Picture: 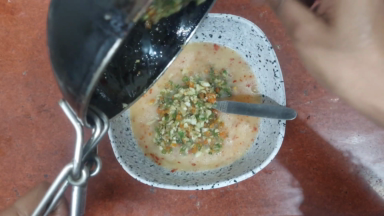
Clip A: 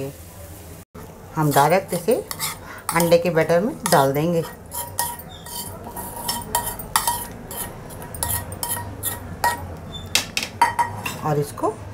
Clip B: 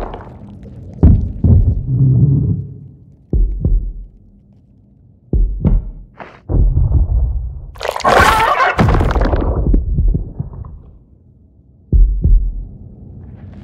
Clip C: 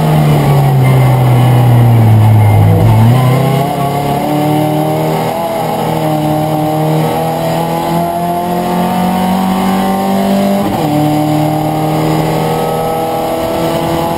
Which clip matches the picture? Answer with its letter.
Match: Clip A